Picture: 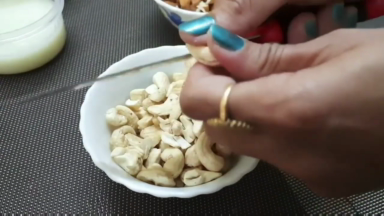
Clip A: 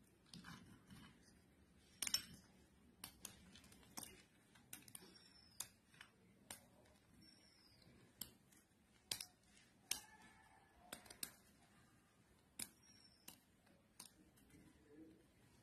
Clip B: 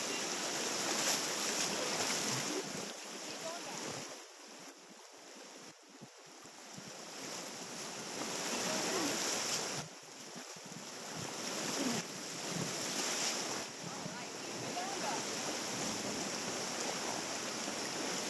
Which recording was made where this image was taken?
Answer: A